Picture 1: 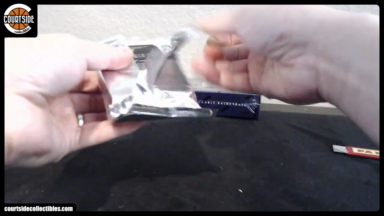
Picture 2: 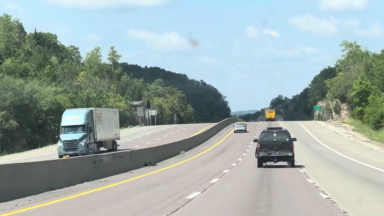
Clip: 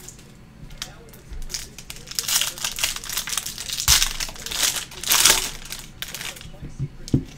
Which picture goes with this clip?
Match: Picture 1